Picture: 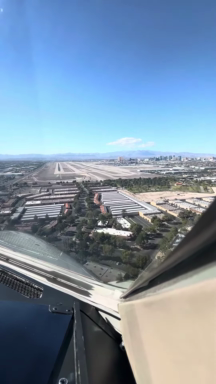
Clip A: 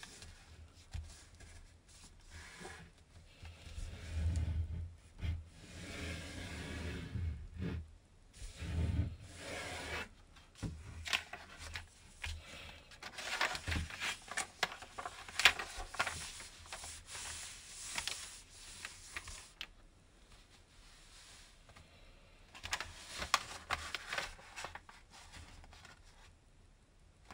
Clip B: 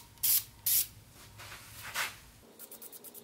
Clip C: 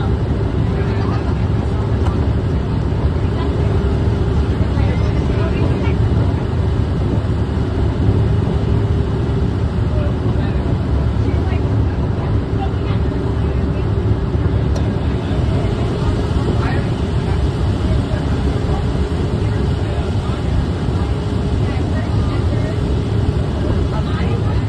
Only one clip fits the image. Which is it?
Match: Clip C